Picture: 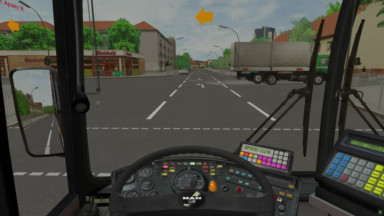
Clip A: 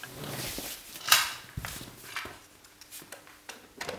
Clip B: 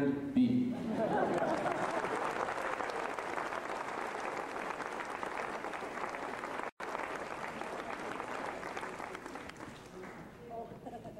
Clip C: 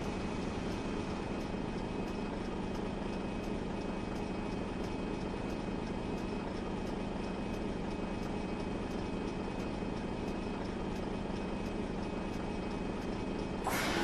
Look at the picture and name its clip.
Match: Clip C